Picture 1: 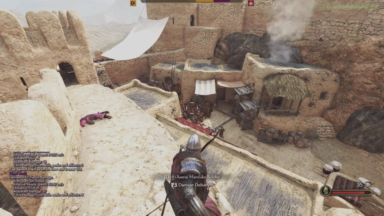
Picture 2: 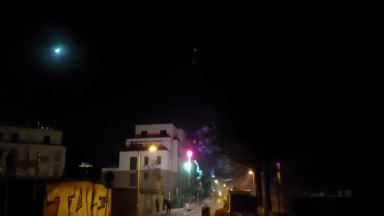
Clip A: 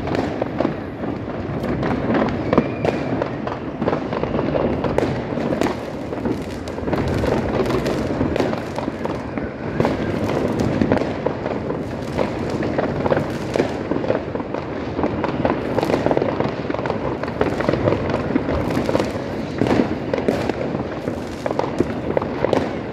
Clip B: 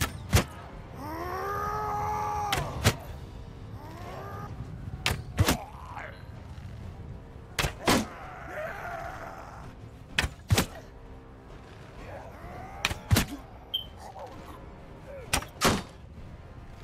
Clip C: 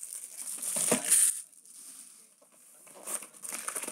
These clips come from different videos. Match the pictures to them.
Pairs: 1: B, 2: A